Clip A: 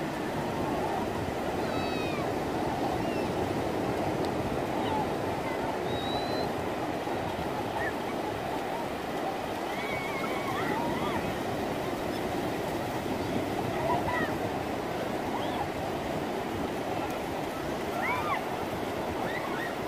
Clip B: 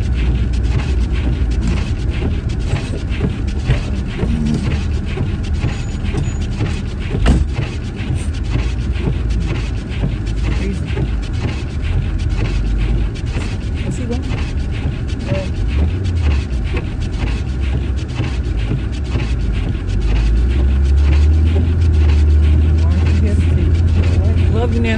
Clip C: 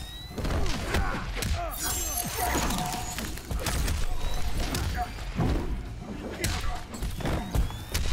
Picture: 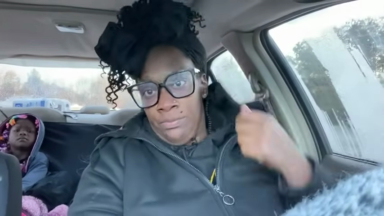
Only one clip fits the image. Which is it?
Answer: B